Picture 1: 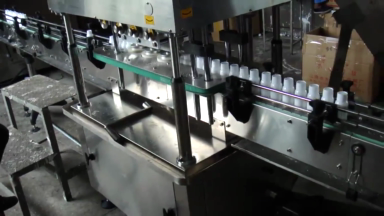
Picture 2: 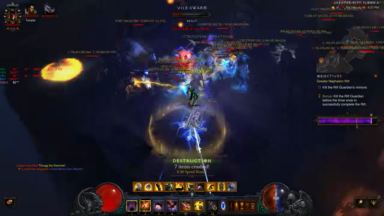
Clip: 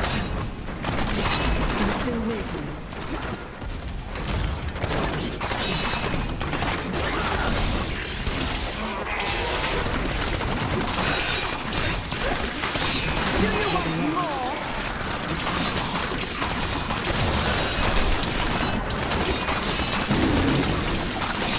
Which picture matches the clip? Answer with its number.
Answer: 2